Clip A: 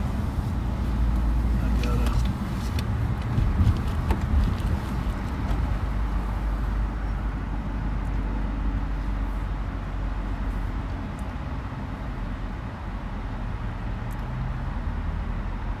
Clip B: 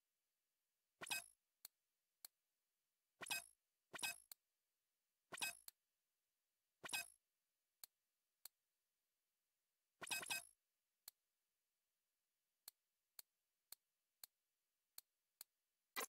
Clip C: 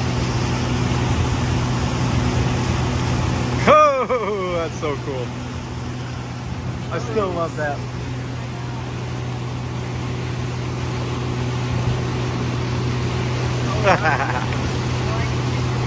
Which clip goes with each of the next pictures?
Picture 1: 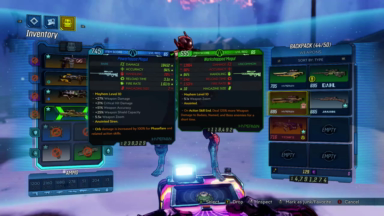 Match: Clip B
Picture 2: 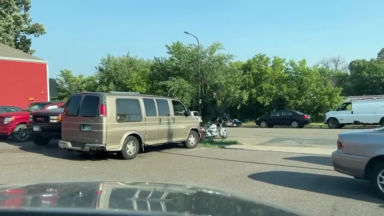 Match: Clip A